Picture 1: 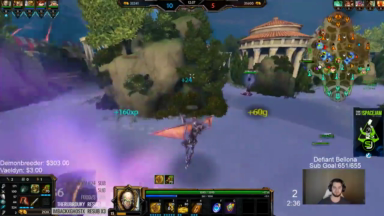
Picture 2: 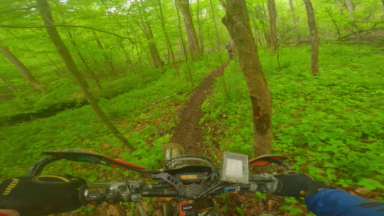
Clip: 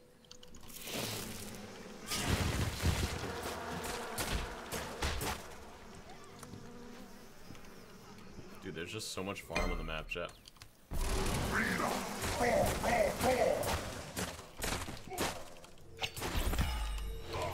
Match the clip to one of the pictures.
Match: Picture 1